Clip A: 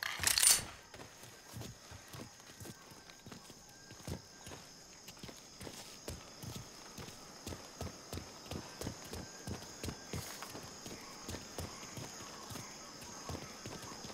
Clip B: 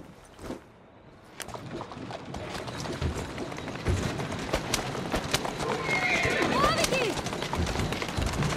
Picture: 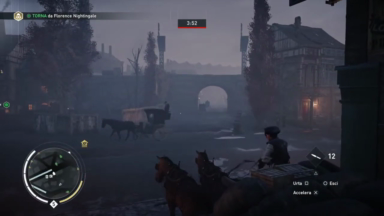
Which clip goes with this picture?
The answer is B